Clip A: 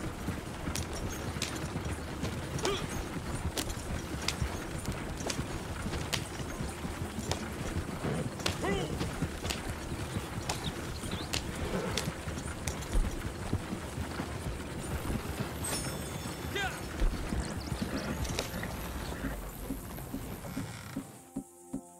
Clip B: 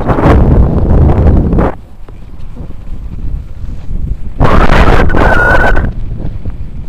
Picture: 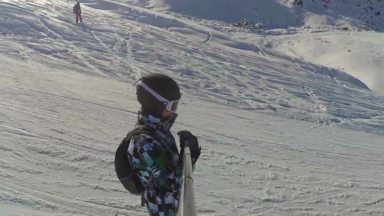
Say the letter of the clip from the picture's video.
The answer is B